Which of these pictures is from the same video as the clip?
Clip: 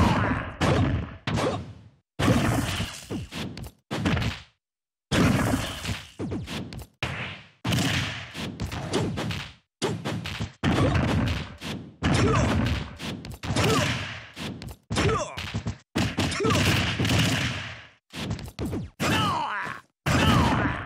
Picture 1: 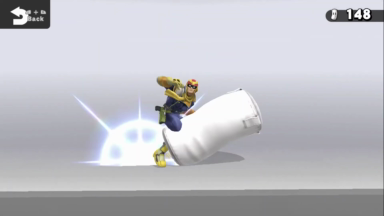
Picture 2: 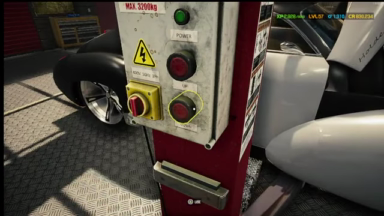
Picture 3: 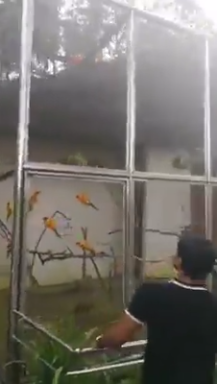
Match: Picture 1